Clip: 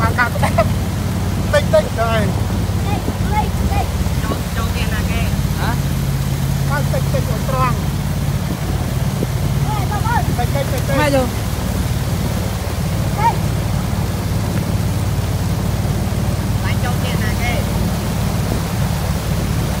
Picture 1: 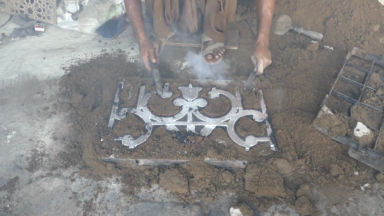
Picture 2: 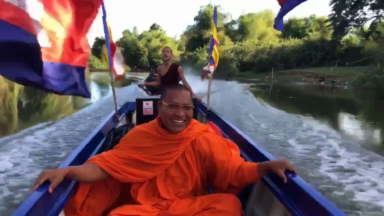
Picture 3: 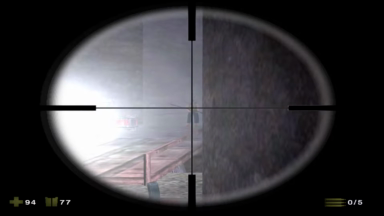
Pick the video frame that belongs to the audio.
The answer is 2